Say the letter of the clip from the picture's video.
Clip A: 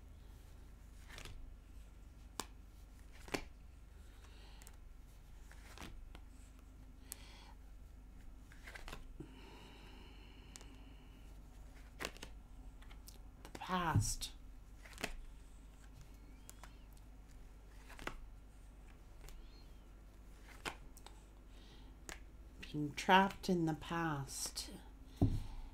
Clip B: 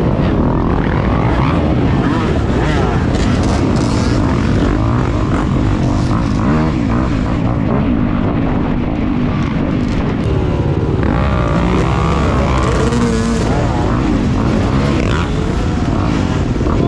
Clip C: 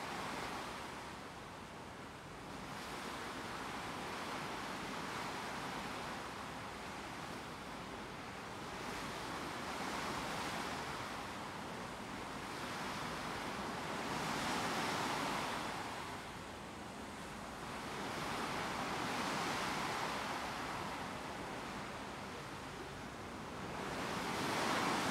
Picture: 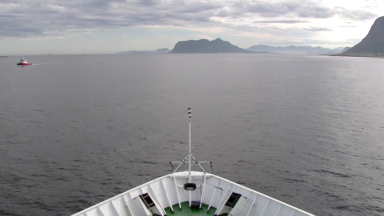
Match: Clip C